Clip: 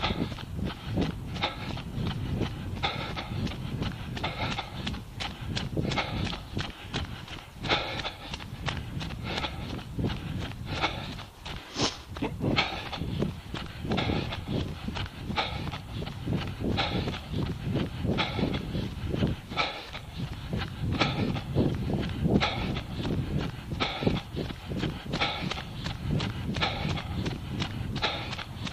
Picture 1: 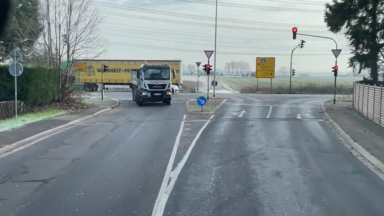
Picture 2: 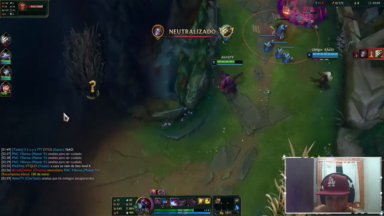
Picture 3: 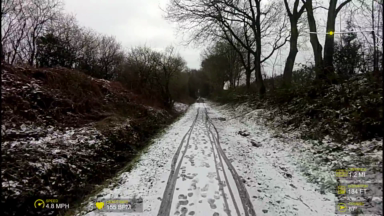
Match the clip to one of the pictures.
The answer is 3